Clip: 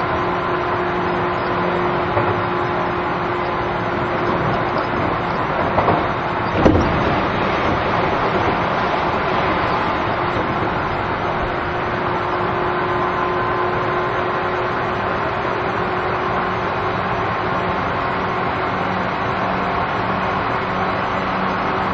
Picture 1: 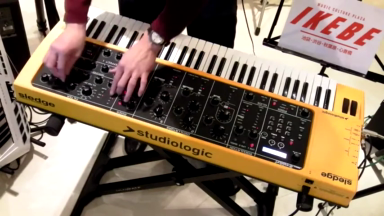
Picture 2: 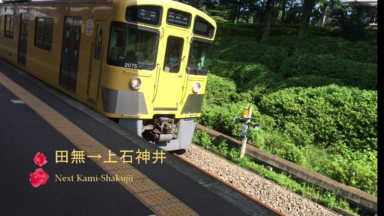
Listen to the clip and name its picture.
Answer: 2